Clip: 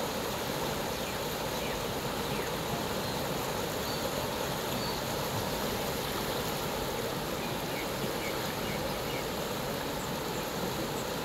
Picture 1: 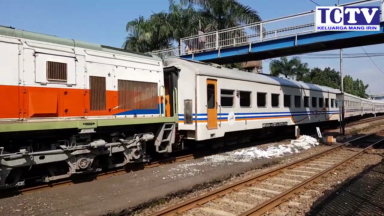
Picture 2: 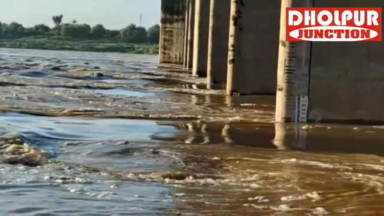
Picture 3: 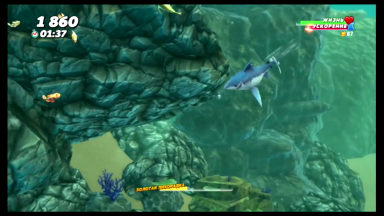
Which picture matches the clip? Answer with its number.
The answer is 2